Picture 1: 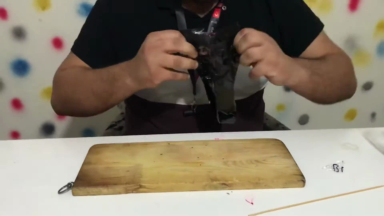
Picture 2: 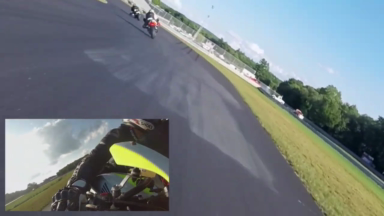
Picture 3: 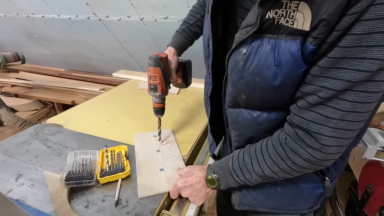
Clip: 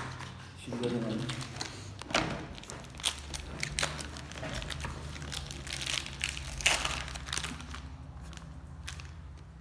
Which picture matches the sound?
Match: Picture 1